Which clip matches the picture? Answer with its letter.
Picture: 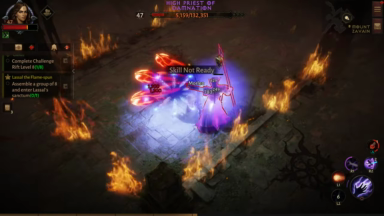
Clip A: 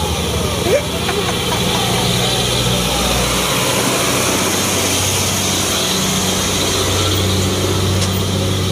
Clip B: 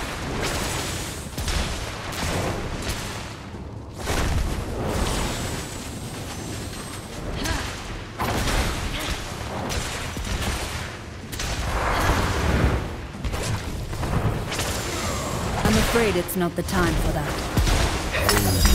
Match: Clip B